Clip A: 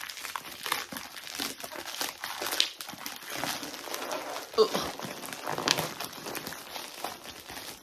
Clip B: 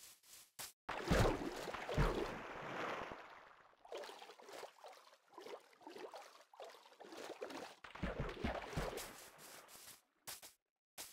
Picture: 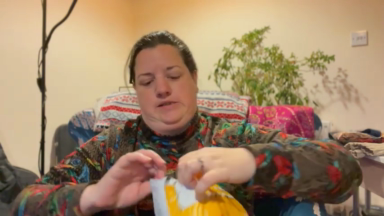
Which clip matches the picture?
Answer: A